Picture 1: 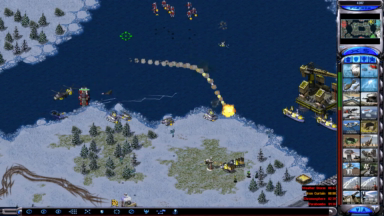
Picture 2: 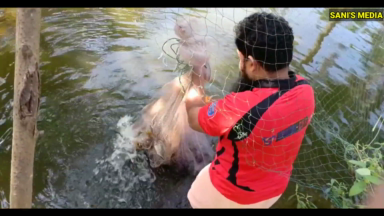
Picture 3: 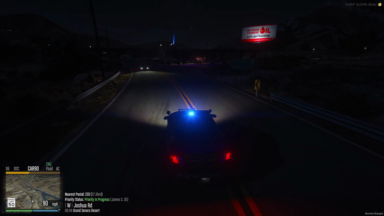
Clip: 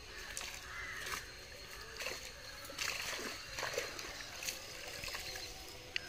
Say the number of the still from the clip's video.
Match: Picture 2